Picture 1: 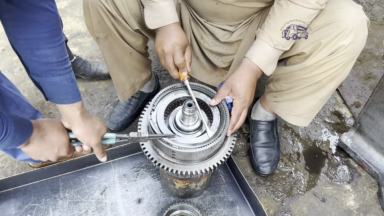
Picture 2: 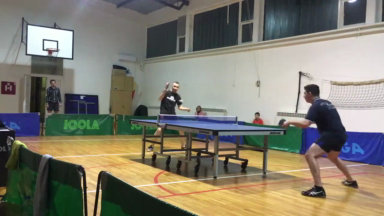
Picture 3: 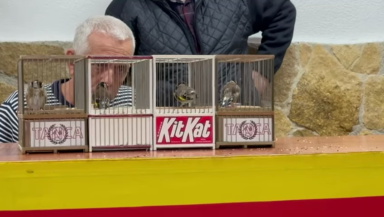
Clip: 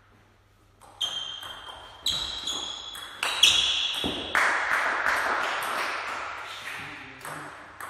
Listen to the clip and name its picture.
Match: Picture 2